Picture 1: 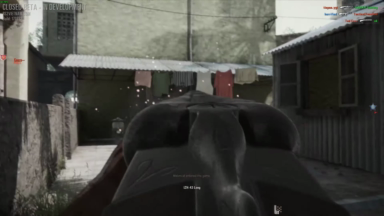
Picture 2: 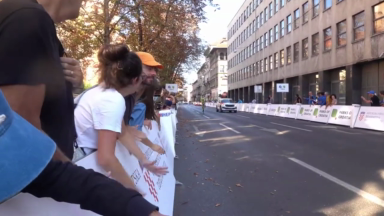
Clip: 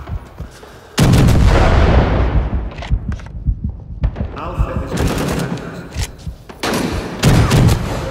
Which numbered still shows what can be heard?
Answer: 1